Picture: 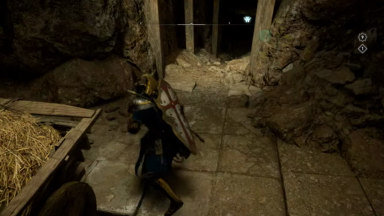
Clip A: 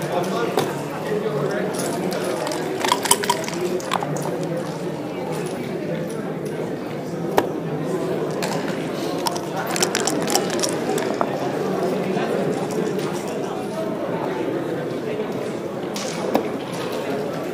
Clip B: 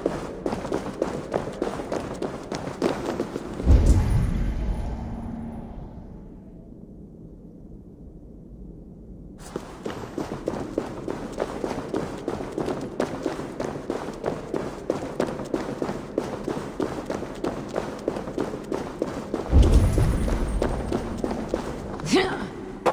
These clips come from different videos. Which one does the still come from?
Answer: B